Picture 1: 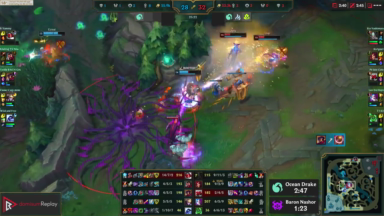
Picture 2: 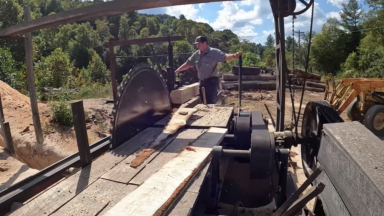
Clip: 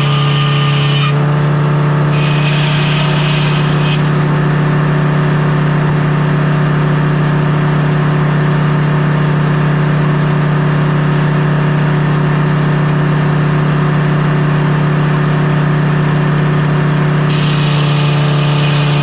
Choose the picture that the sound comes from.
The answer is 2